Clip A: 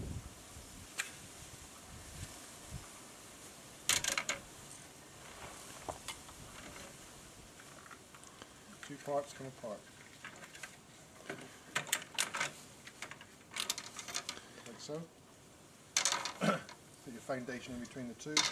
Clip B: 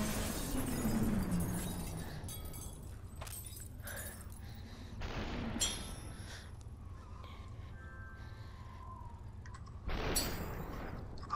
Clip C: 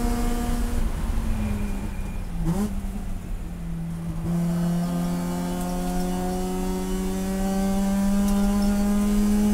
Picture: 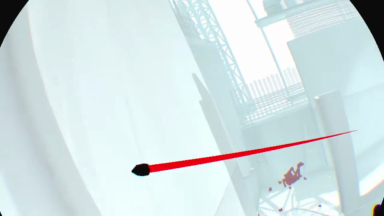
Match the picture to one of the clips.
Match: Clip B